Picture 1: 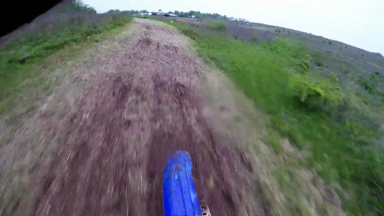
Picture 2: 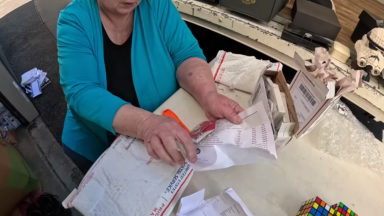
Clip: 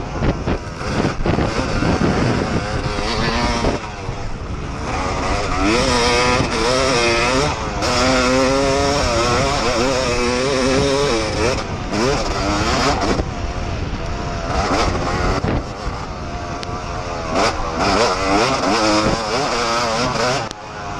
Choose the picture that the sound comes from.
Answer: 1